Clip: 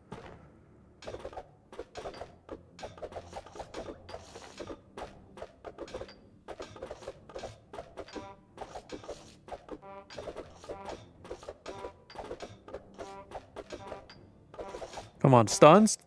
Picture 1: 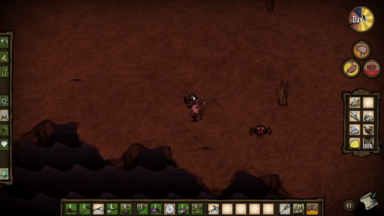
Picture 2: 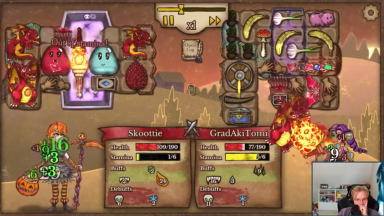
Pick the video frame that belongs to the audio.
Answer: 2